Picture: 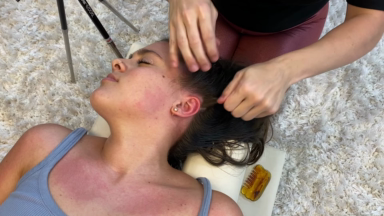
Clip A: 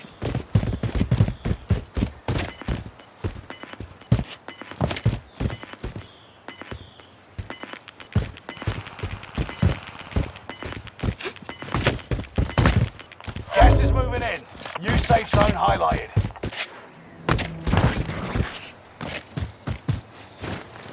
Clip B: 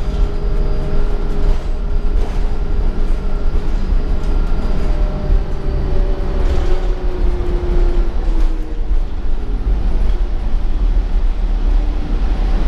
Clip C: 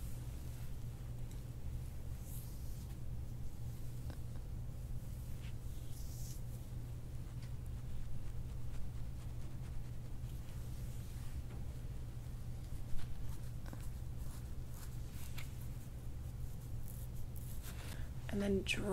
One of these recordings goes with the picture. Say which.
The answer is C